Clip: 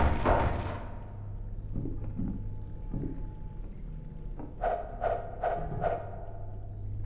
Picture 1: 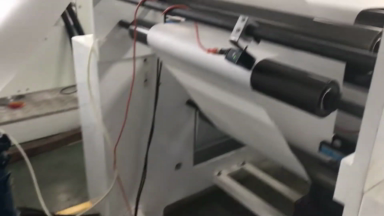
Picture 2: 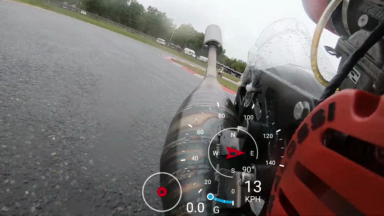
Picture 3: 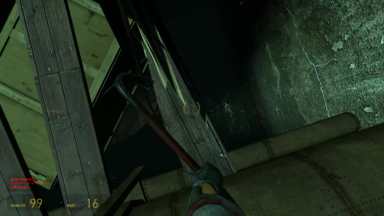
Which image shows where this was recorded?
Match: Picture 3